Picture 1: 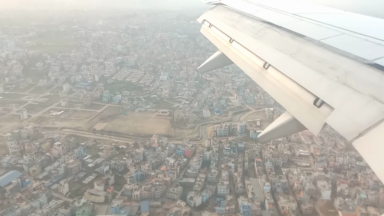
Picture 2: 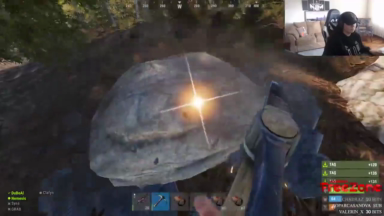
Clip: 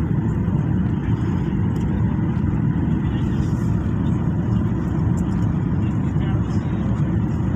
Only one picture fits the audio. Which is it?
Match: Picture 1